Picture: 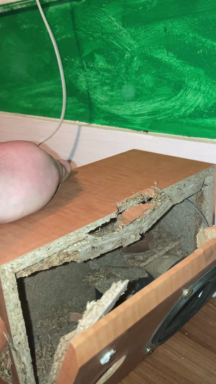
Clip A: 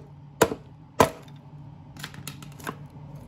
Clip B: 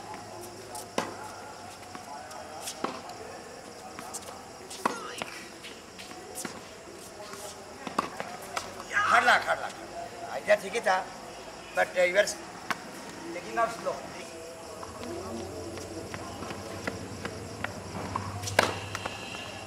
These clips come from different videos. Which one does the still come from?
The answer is A